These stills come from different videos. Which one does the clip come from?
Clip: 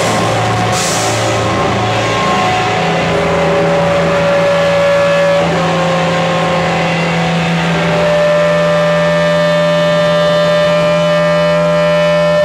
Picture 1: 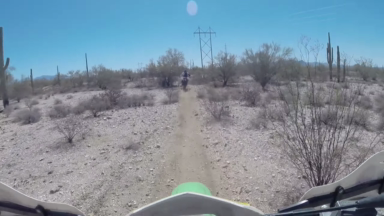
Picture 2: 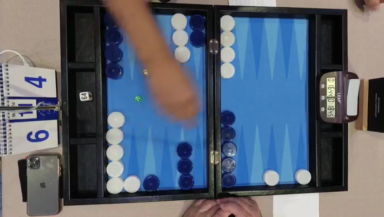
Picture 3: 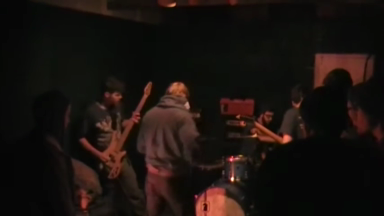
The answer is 3